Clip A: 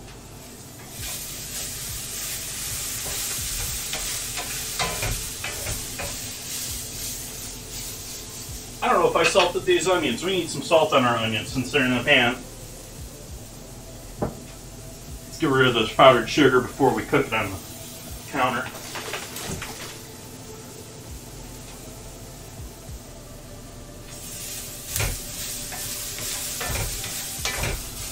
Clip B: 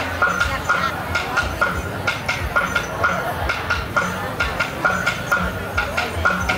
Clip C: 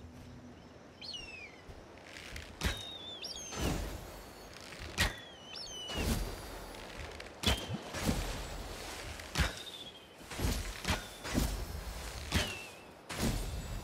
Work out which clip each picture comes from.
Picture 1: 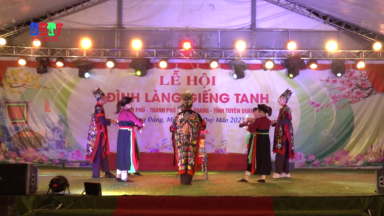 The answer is B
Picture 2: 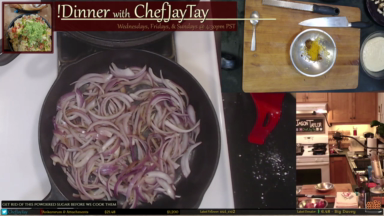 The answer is A